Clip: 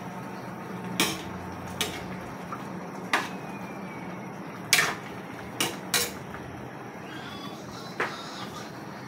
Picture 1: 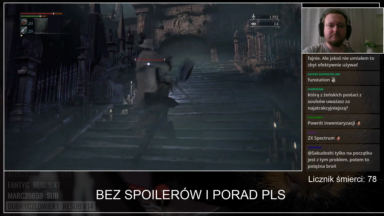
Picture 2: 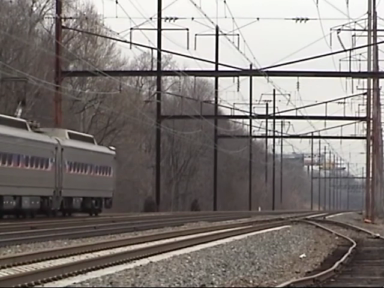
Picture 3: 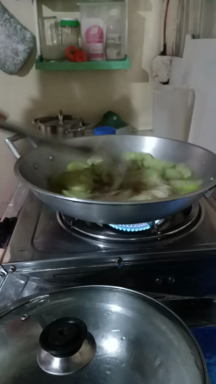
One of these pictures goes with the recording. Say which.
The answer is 3